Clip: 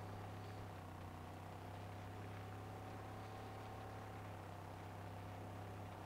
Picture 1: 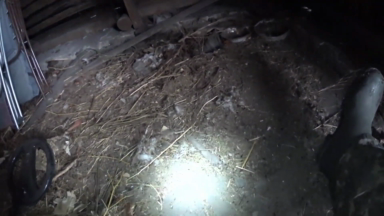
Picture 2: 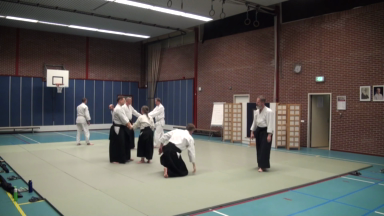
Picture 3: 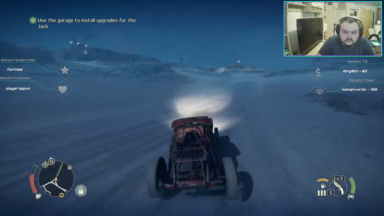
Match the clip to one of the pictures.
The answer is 3